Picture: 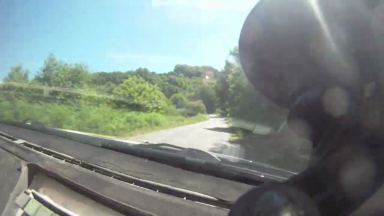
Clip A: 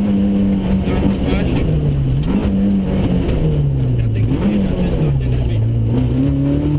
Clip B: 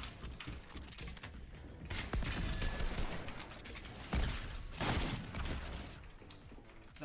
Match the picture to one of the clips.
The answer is A